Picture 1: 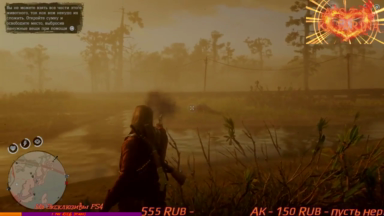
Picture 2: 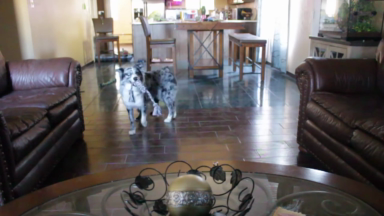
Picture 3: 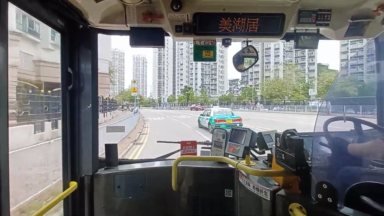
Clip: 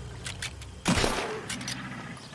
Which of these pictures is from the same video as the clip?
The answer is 1